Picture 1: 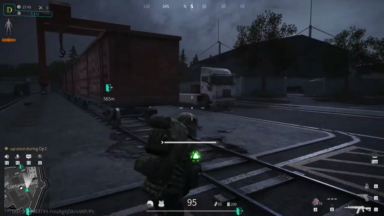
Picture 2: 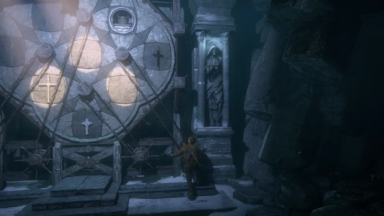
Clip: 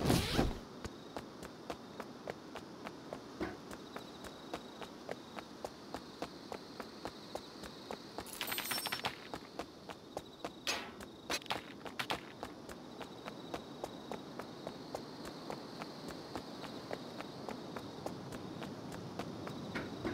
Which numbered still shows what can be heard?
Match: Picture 1